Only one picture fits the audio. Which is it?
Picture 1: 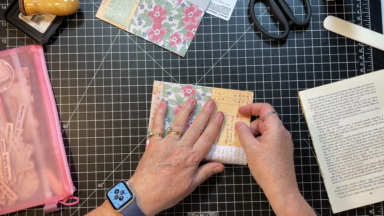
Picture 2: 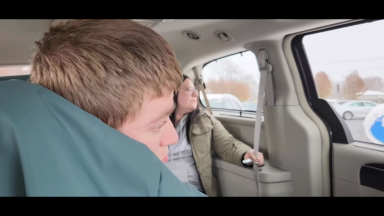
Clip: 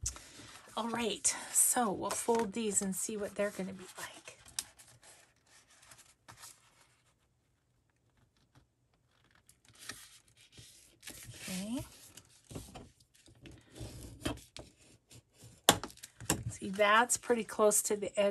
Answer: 1